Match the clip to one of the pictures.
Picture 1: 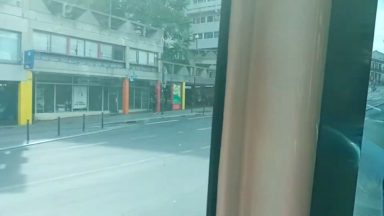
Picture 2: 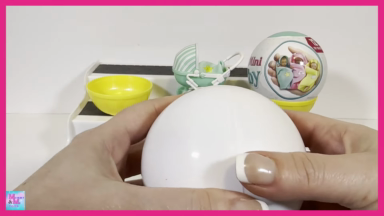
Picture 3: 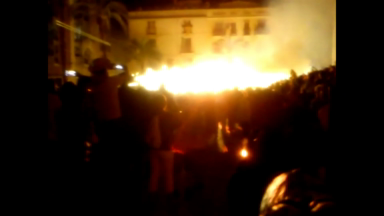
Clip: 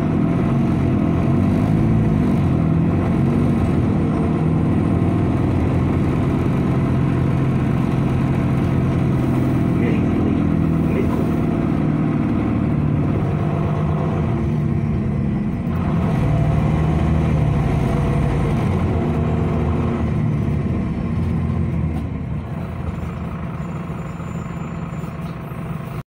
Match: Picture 1